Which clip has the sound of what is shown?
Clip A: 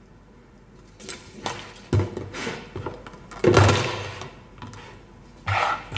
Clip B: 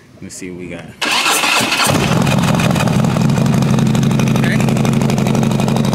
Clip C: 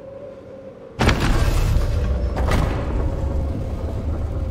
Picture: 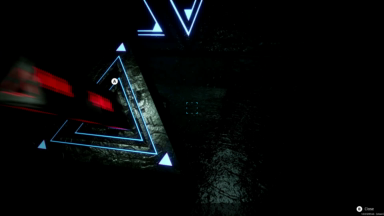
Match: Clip C